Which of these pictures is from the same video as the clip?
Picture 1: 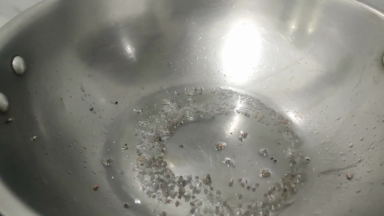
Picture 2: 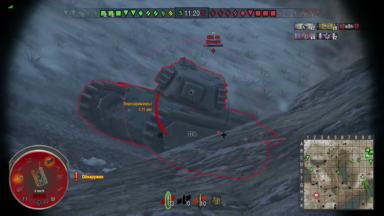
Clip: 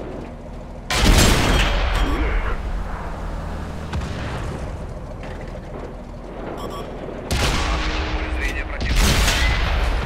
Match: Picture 2